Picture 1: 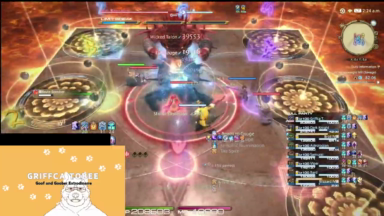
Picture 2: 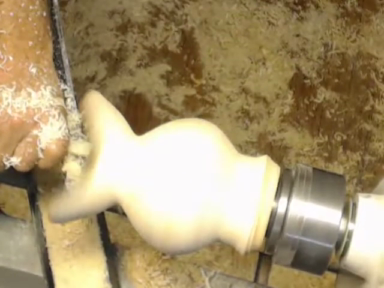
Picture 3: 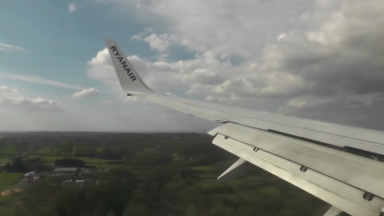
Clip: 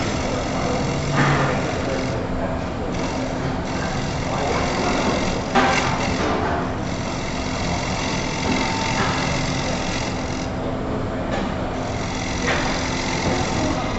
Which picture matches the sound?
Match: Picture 2